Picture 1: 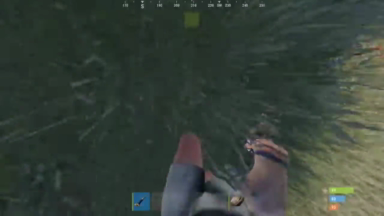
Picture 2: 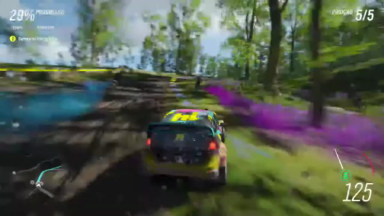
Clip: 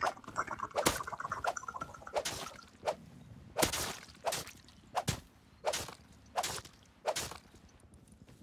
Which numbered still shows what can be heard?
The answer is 1